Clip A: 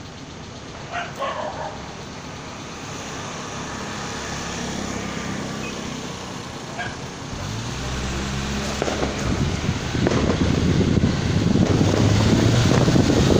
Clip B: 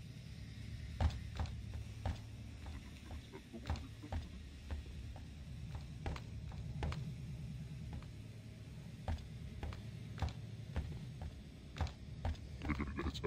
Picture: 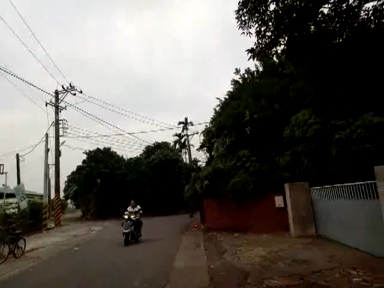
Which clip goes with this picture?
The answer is A